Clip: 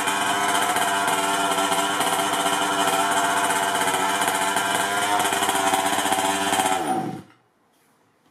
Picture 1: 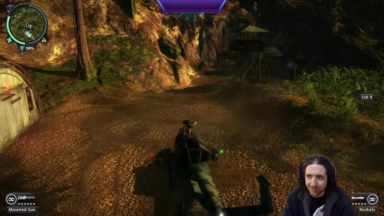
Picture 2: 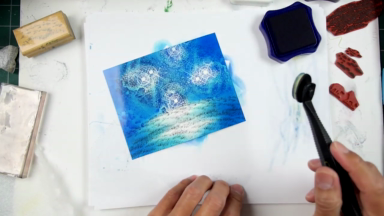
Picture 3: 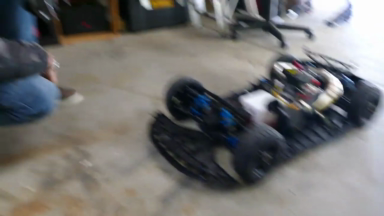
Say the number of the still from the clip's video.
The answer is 3